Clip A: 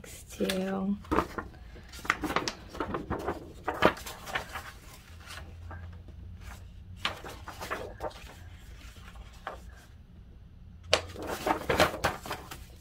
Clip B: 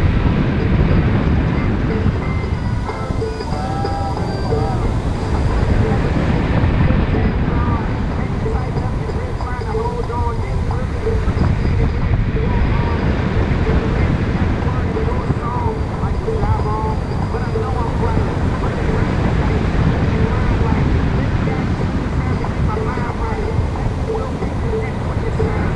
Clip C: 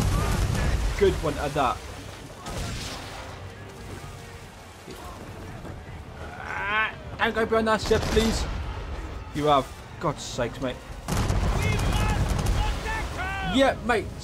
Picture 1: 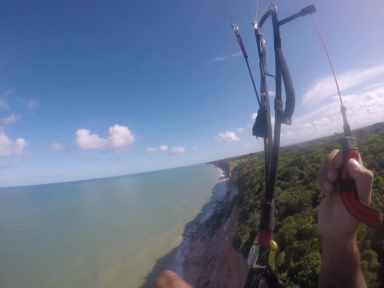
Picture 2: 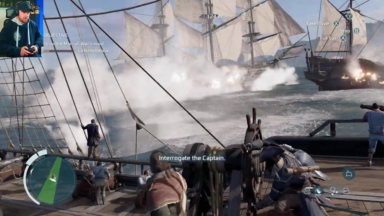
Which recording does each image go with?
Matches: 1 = B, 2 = C